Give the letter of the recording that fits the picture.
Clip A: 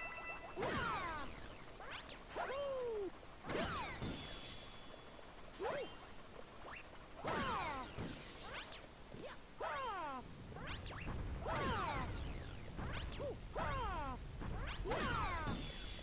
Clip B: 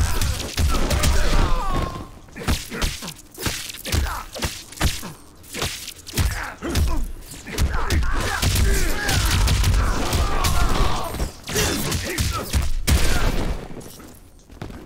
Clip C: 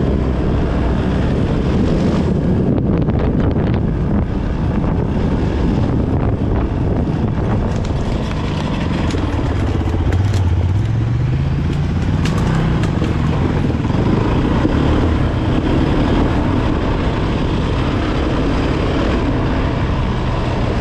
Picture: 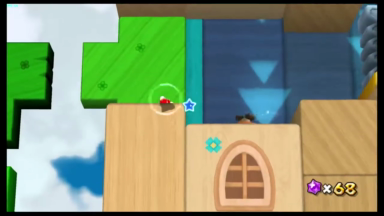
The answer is A